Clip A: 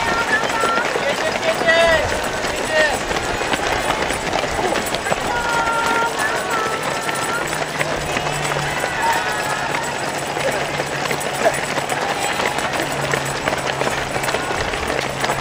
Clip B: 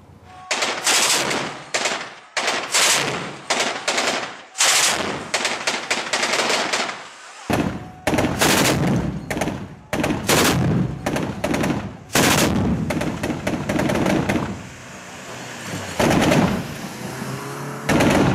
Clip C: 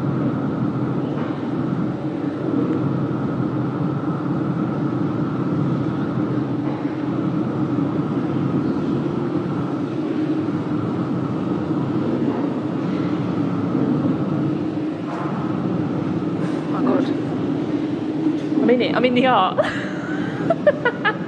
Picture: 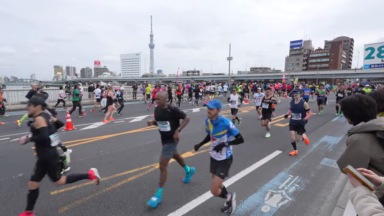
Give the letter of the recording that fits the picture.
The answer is A